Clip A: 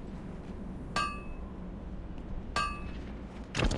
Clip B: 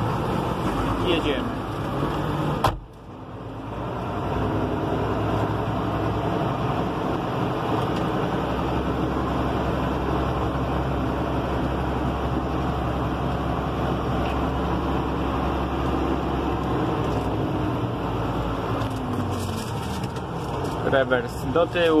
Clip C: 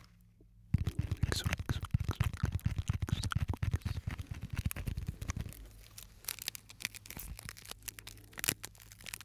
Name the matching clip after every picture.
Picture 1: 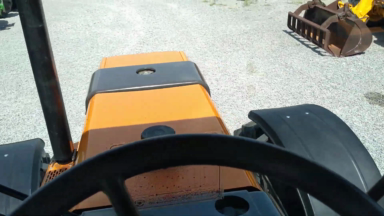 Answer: B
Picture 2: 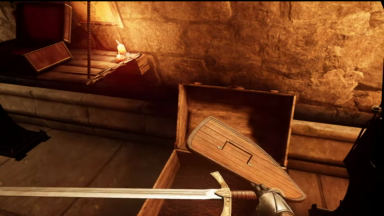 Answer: A